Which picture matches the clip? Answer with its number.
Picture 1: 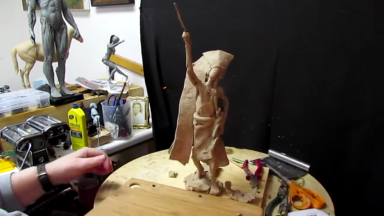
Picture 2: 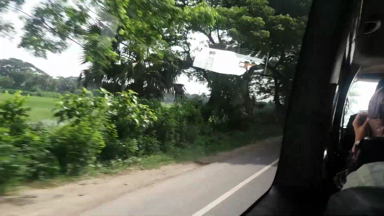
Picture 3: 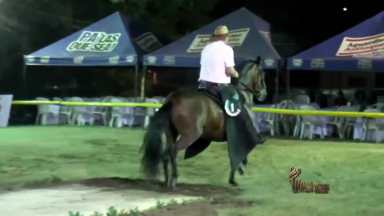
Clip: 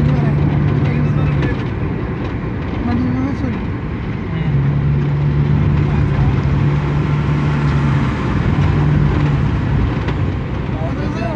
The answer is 2